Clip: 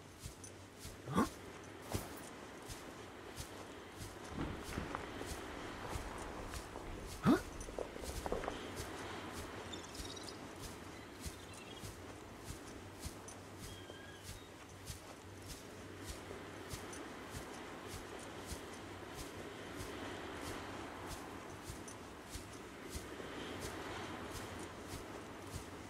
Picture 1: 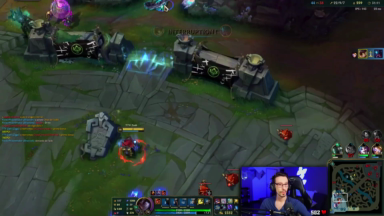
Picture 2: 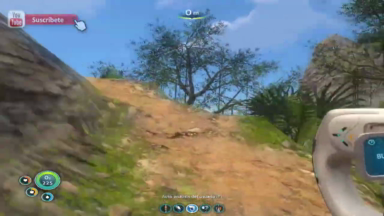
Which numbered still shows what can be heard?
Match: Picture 2